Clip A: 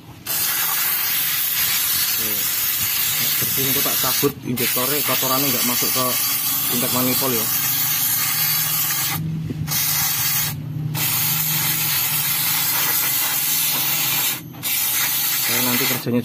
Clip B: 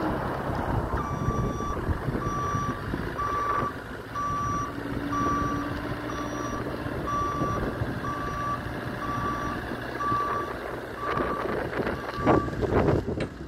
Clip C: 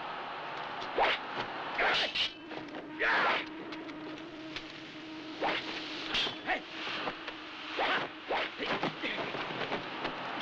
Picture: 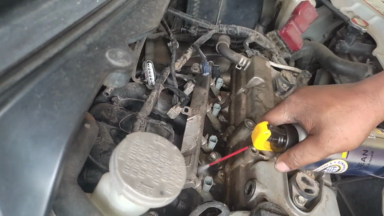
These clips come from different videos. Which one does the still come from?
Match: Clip A